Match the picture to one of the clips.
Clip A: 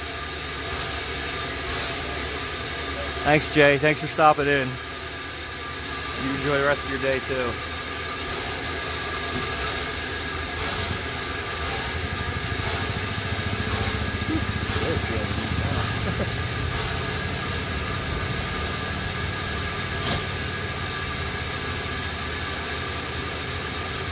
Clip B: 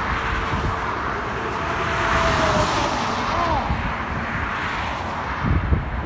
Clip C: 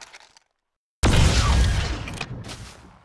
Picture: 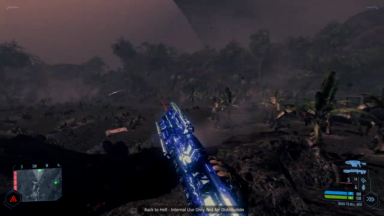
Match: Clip C